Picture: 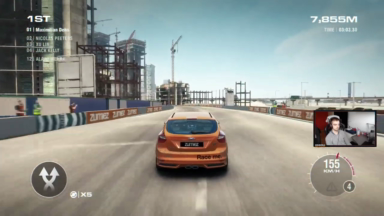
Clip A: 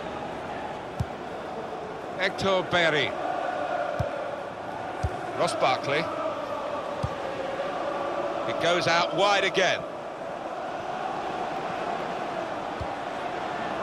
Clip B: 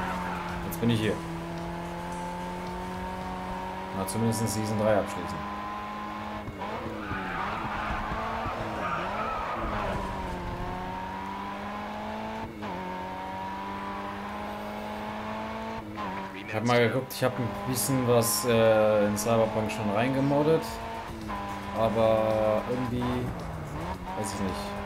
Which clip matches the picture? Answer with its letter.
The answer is B